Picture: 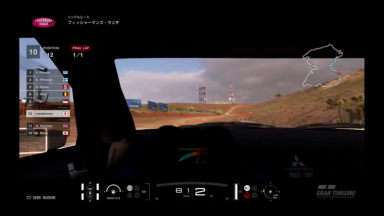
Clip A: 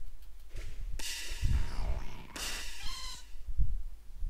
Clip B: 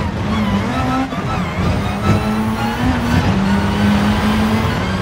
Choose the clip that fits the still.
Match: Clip B